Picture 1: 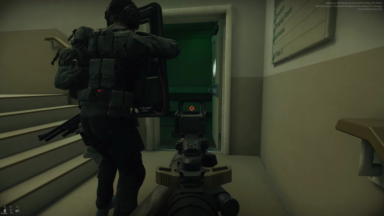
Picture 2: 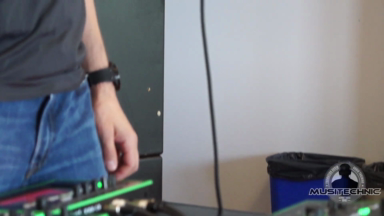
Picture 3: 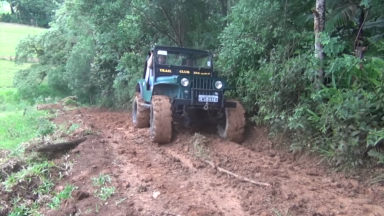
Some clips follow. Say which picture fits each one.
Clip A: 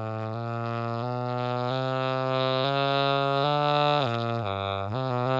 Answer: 2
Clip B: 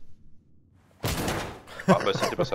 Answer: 1